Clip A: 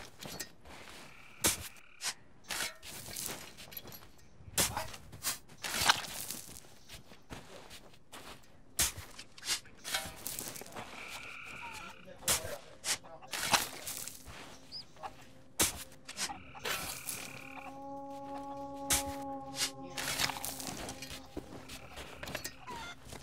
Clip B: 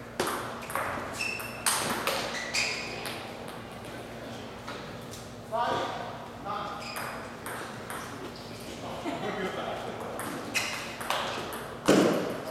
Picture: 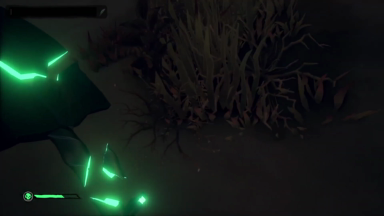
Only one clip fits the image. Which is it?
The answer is A